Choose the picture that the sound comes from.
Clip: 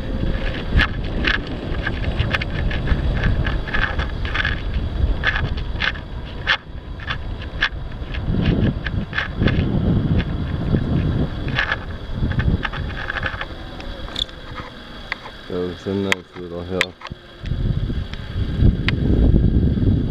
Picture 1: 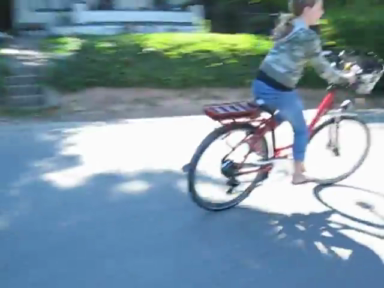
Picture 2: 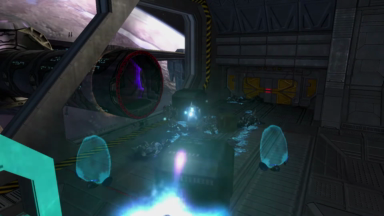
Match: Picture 1